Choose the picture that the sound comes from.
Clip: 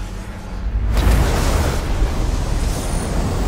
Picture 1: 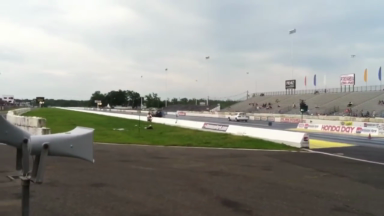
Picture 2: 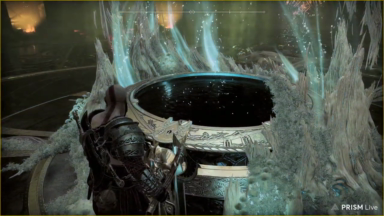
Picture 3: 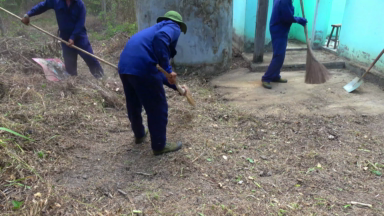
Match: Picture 2